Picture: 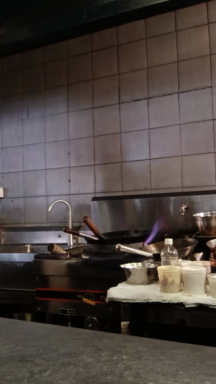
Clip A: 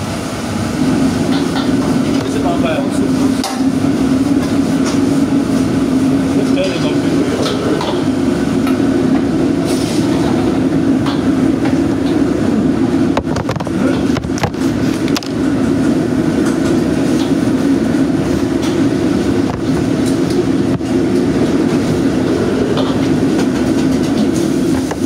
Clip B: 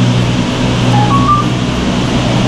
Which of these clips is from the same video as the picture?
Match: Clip A